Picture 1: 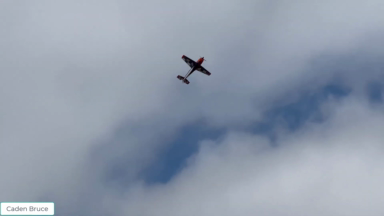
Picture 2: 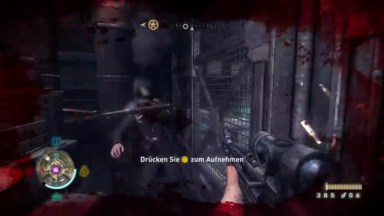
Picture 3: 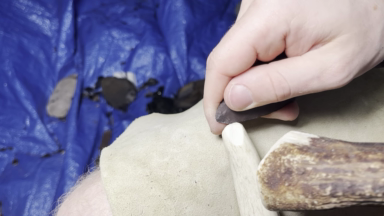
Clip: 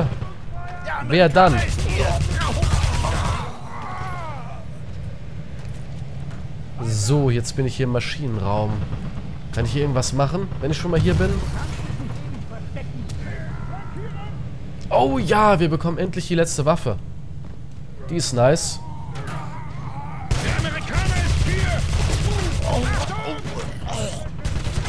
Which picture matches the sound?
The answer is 2